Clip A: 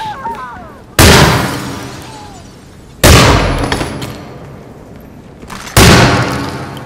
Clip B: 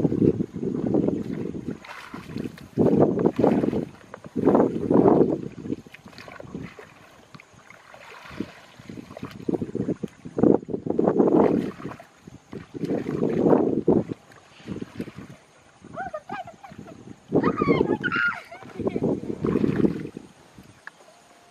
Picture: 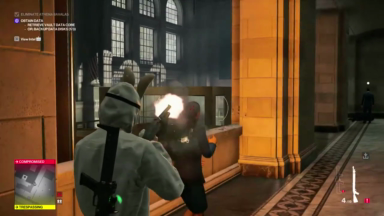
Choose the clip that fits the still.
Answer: A